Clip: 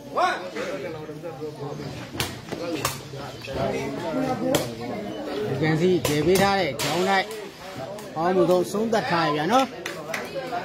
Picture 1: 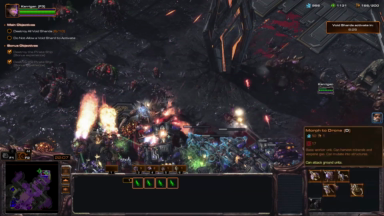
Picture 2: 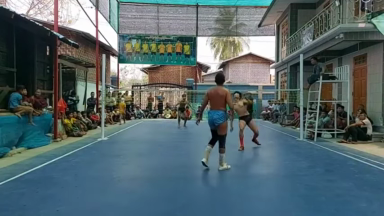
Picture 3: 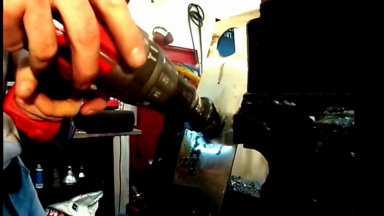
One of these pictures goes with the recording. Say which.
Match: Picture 2